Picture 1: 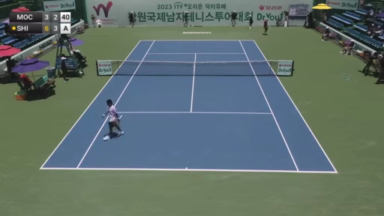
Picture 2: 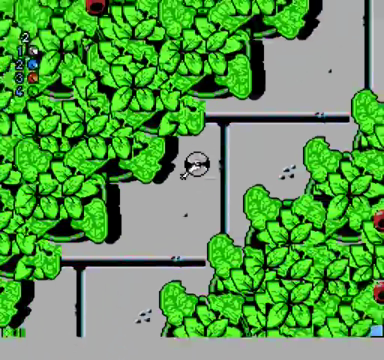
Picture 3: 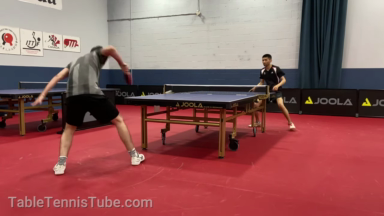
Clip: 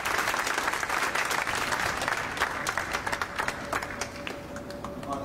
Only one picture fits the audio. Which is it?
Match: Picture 1